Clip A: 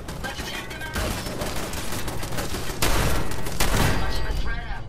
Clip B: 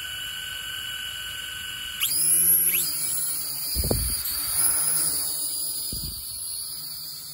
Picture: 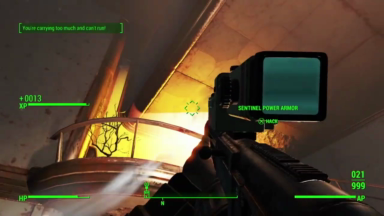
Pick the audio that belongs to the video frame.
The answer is A